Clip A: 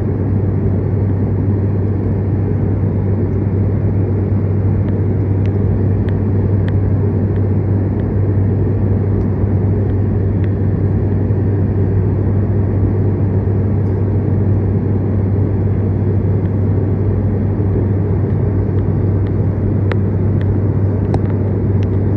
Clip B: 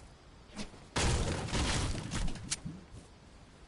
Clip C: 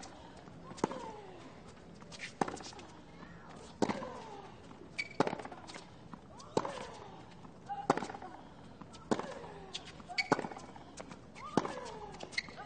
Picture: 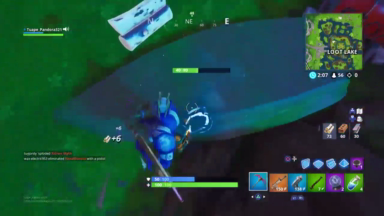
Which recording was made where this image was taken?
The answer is B